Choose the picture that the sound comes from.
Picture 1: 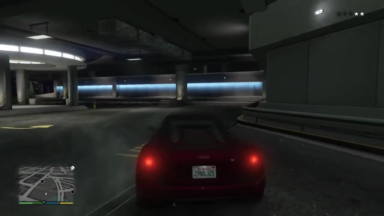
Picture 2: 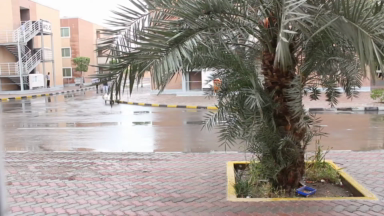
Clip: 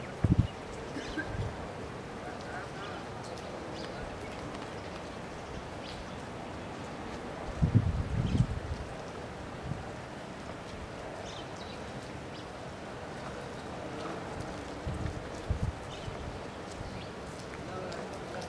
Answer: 2